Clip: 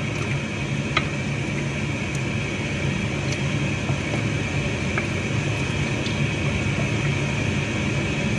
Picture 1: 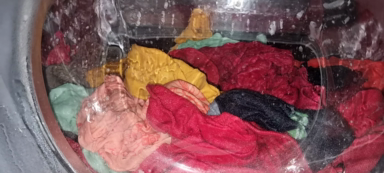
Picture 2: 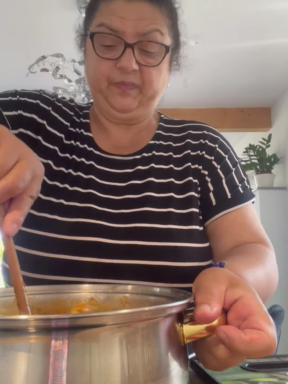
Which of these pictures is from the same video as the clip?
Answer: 2